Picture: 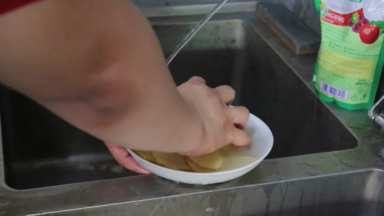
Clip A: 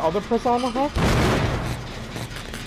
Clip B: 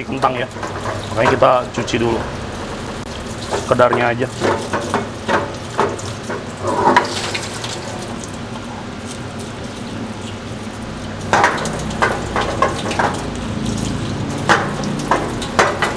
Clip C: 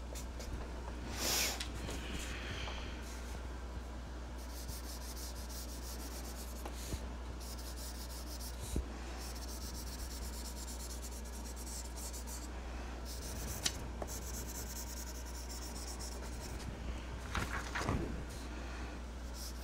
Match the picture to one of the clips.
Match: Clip B